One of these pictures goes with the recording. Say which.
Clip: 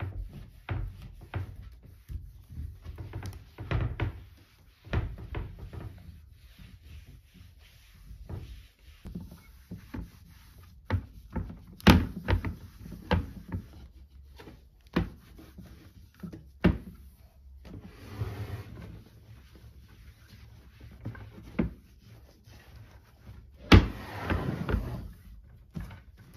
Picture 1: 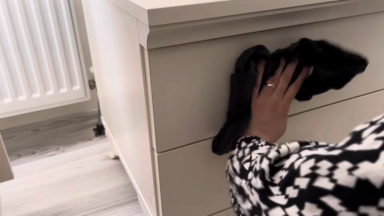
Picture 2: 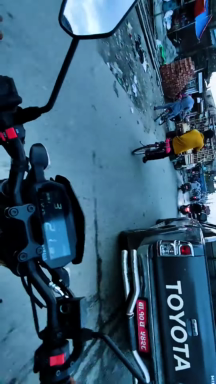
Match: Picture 1